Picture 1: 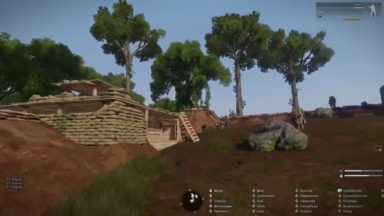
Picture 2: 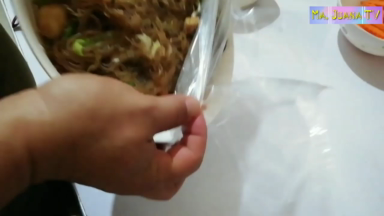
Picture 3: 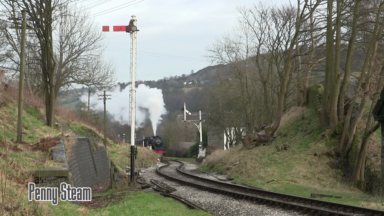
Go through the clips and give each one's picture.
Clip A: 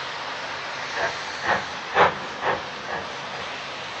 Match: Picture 3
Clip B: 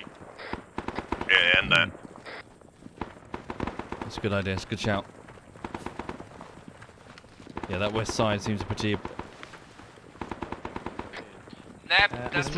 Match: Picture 1